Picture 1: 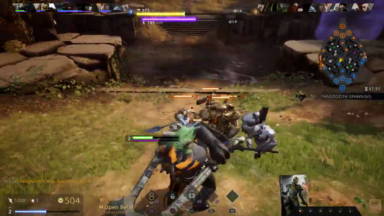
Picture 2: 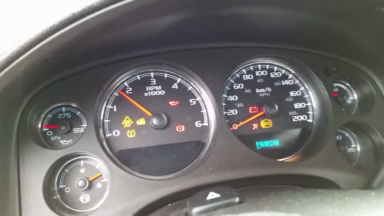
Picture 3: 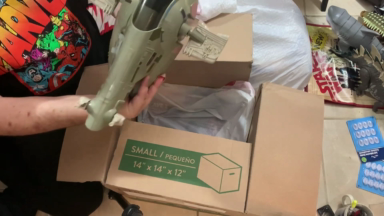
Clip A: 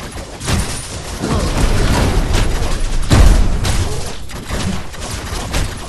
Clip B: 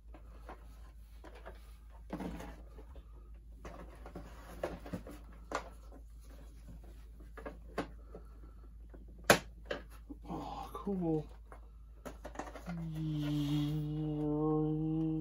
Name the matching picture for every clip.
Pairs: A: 1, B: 3